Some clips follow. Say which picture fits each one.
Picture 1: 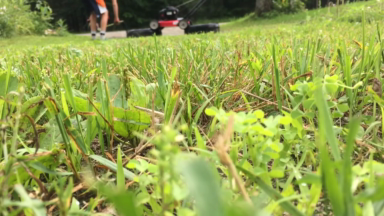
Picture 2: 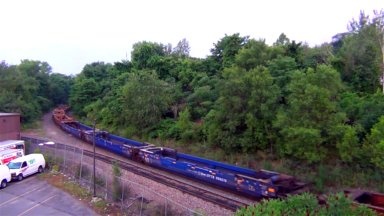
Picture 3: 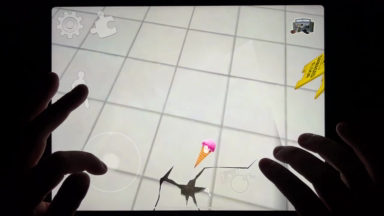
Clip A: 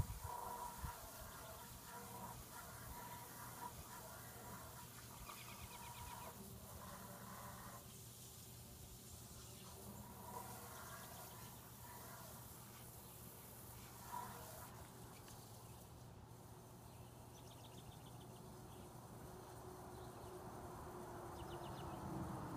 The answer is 1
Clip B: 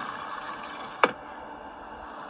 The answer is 3